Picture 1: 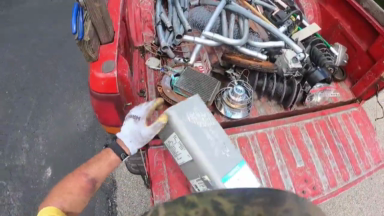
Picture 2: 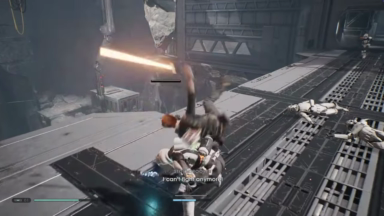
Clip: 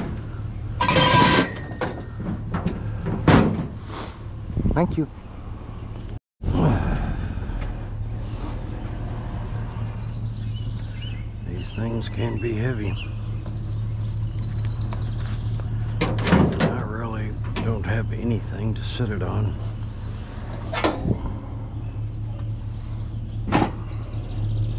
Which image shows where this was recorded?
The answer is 1